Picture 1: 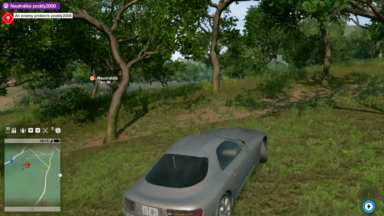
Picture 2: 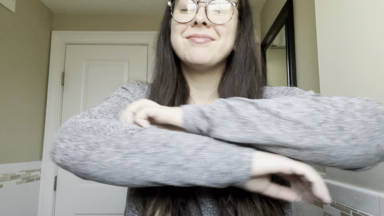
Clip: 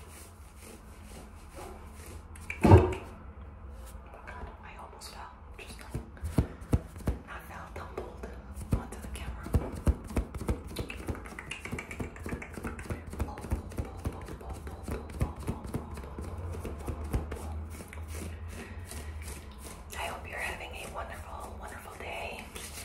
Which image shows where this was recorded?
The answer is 2